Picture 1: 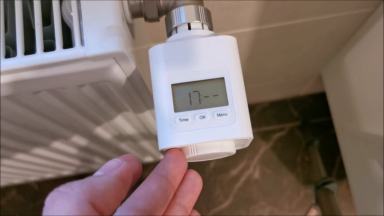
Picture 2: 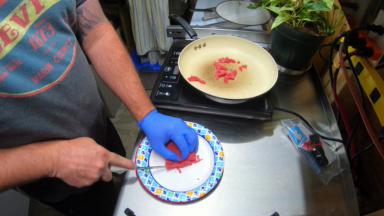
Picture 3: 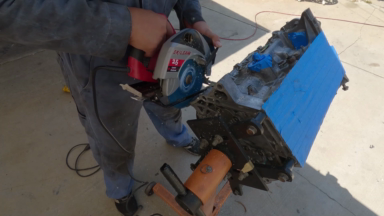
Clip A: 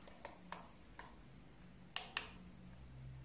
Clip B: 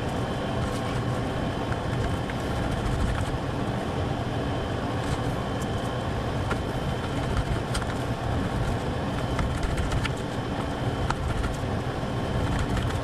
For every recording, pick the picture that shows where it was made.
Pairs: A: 1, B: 2